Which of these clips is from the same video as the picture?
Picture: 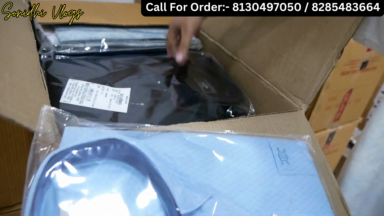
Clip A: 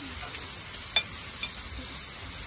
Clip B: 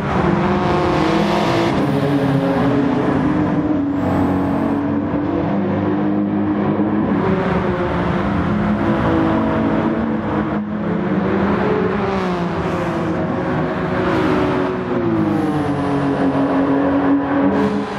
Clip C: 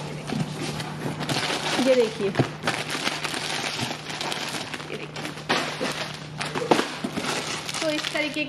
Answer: C